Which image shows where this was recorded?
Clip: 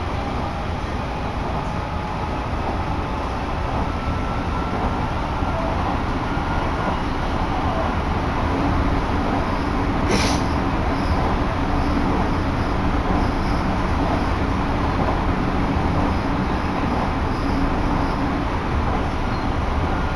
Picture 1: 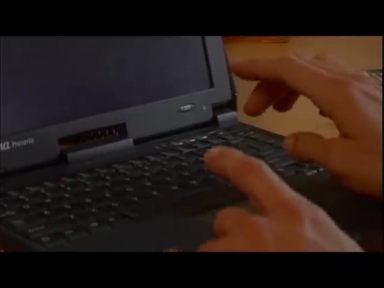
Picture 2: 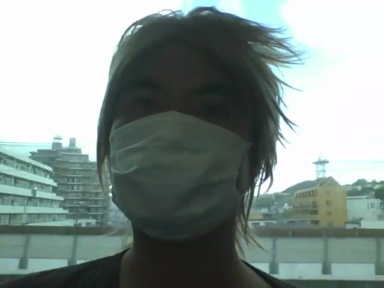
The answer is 2